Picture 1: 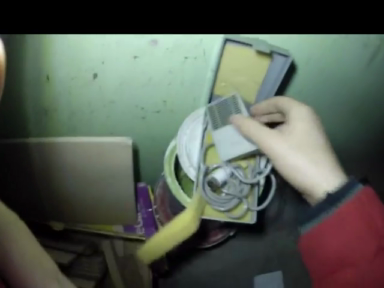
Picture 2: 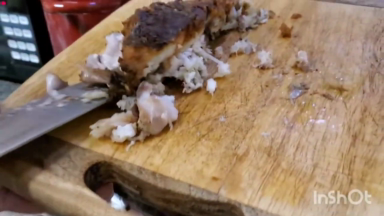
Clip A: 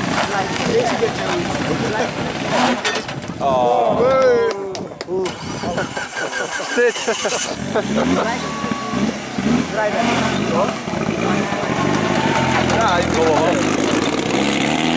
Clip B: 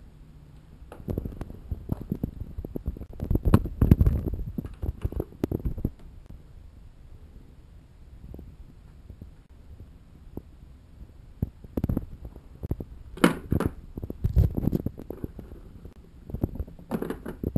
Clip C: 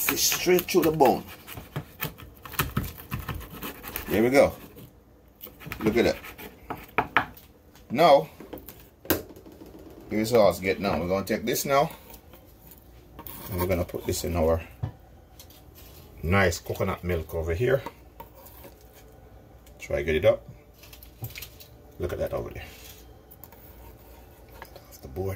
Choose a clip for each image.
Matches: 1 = B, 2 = C